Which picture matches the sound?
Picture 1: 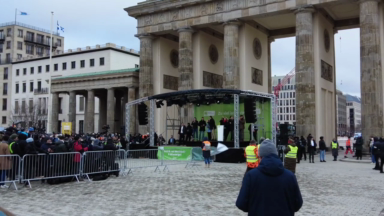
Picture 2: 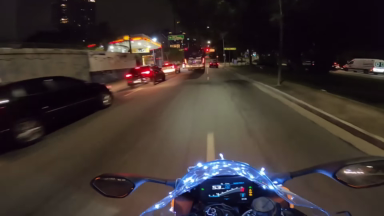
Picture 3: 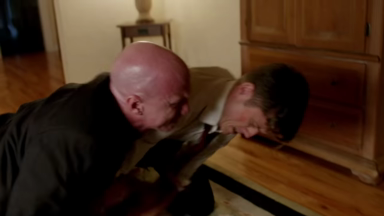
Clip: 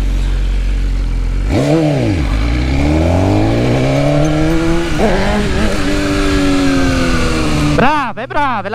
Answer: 2